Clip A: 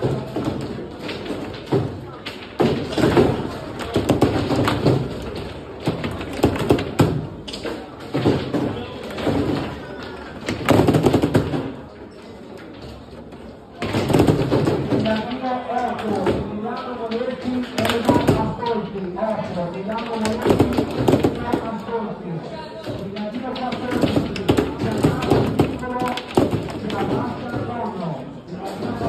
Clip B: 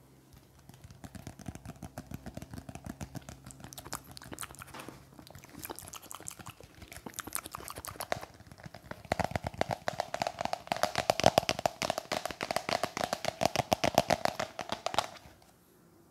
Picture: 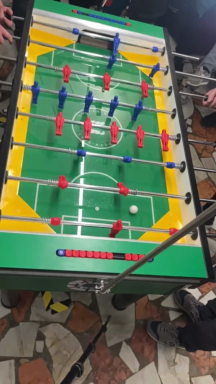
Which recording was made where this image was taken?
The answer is A